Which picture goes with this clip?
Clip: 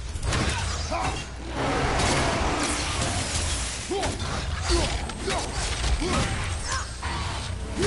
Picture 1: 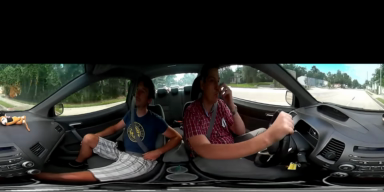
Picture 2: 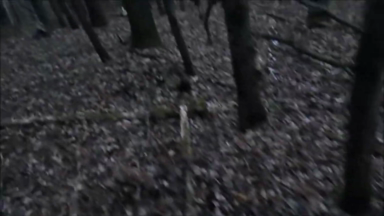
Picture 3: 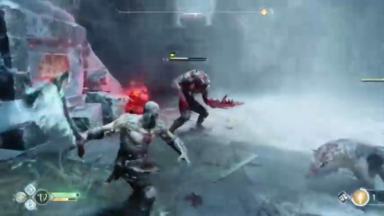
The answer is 3